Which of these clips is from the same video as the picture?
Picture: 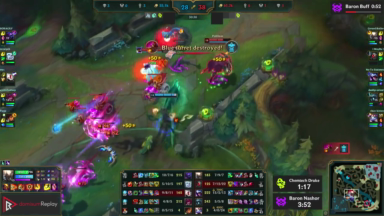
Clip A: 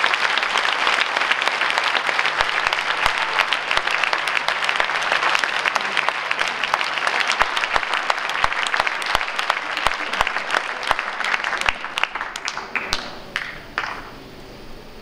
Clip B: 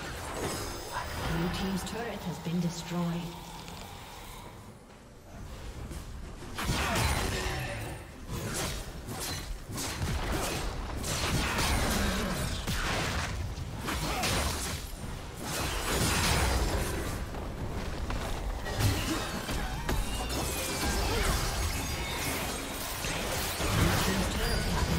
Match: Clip B